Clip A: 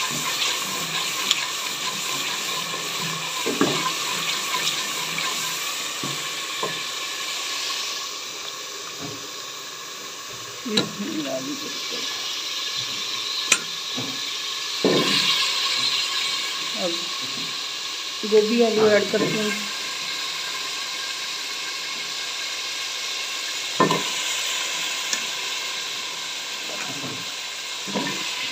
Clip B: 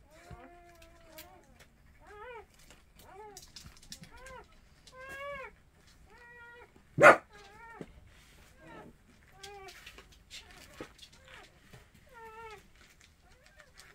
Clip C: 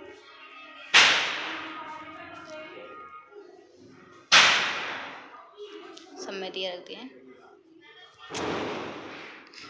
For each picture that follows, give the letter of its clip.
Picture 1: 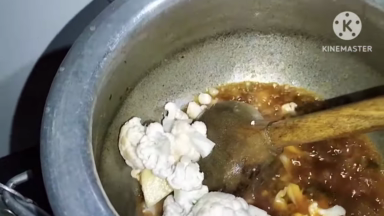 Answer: A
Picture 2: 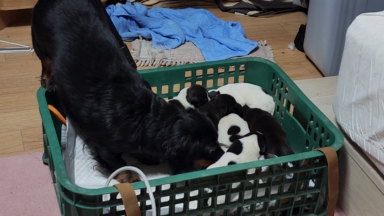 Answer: B